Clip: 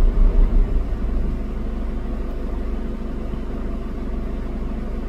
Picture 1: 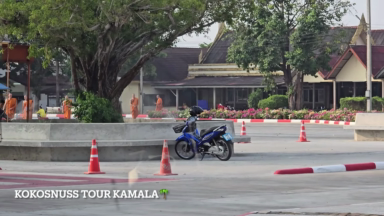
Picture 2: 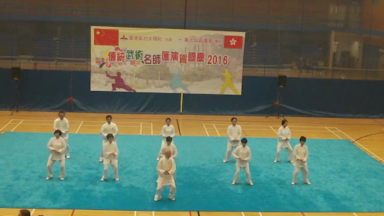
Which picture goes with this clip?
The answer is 1